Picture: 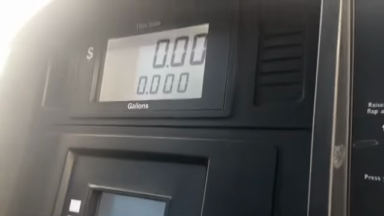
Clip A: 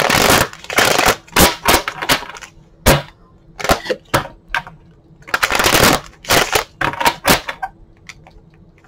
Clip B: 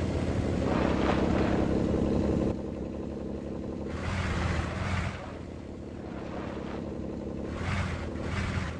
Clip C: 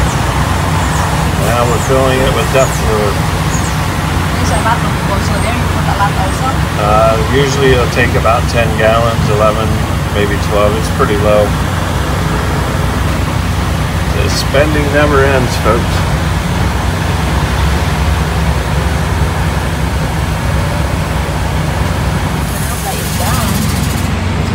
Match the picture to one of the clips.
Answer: C